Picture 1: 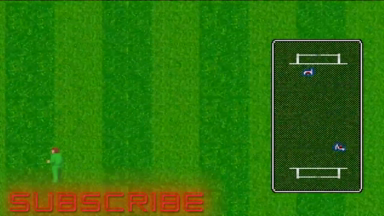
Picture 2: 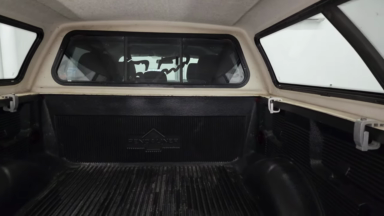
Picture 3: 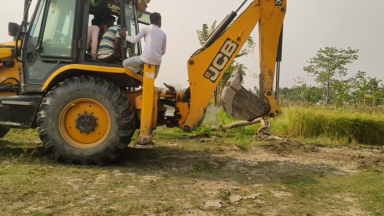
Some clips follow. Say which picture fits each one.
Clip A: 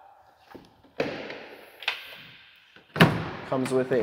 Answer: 2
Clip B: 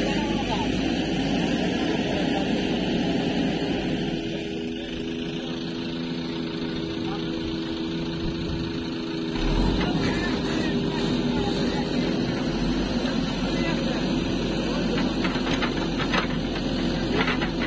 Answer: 3